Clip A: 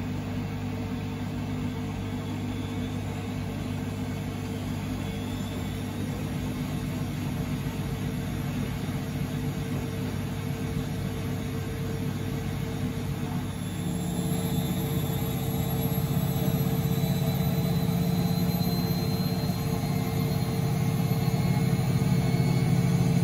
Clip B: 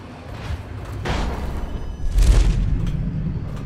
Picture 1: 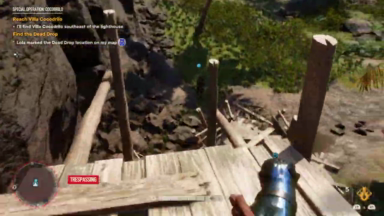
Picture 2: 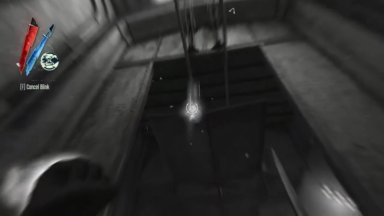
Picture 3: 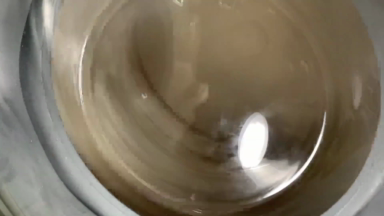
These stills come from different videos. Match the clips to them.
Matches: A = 3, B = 2